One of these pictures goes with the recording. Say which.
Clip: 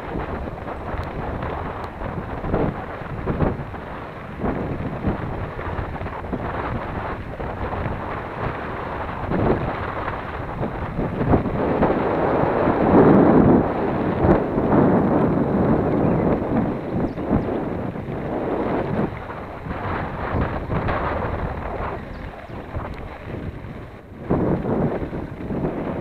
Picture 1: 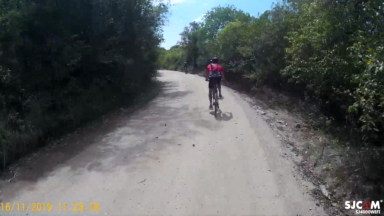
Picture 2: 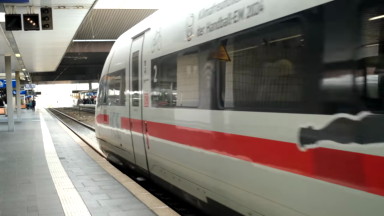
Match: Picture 1